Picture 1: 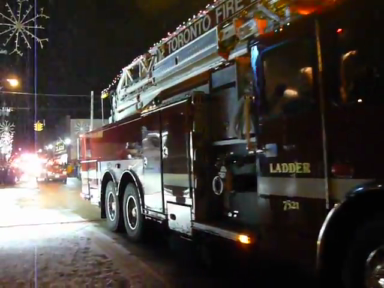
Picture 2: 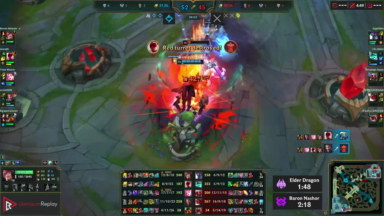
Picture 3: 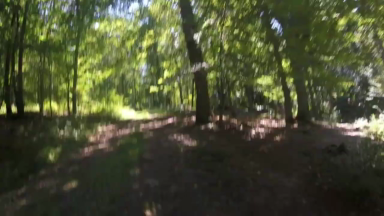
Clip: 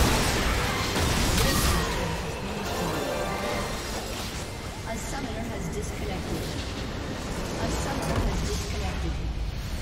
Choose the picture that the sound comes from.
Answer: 2